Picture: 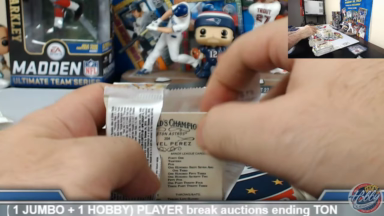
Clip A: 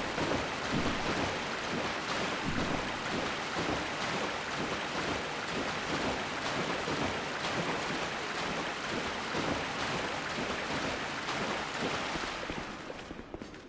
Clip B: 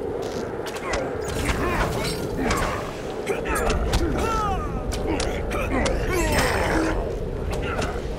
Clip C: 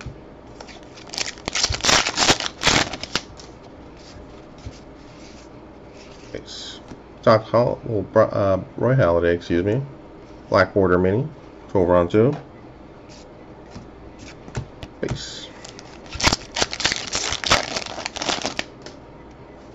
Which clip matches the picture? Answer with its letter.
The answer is C